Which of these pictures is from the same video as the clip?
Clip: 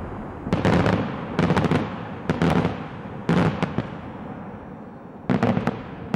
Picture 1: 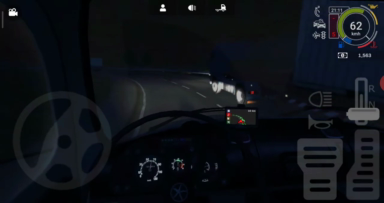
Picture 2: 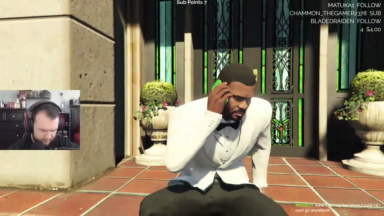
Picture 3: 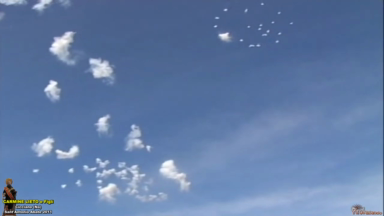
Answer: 3